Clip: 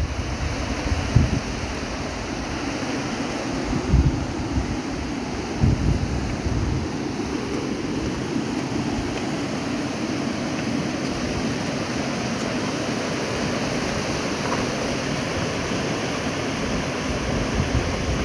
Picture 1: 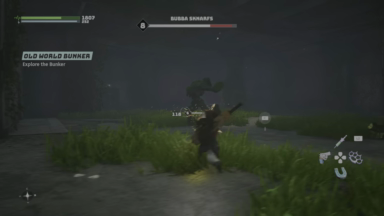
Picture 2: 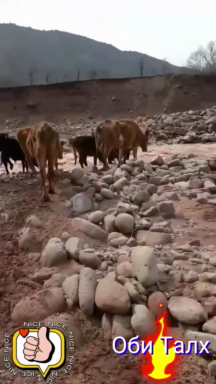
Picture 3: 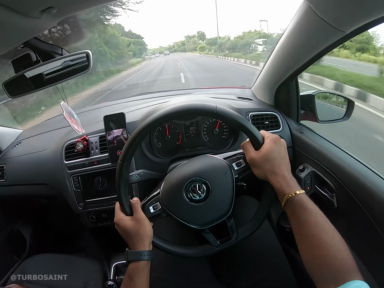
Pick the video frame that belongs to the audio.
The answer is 2